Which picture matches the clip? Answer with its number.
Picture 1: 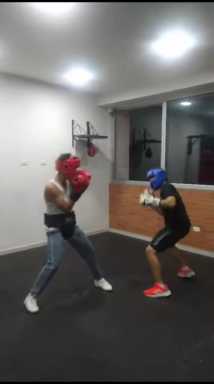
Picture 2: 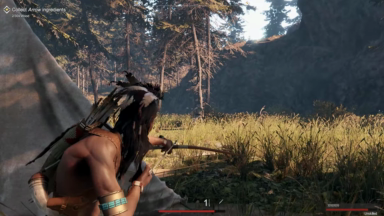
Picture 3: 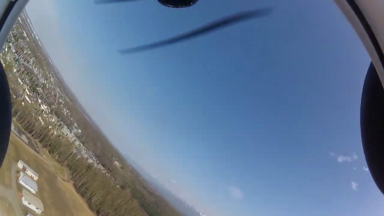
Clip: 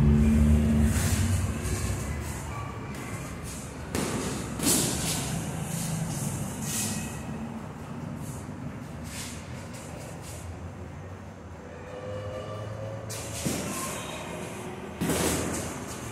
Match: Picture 1